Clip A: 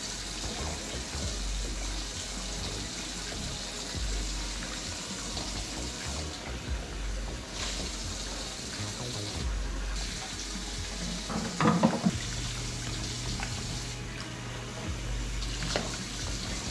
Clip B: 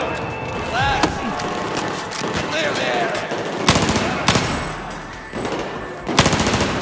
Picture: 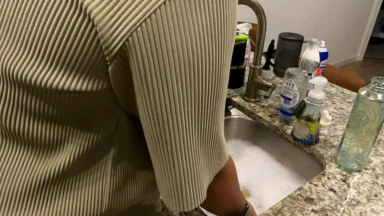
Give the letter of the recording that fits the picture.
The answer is A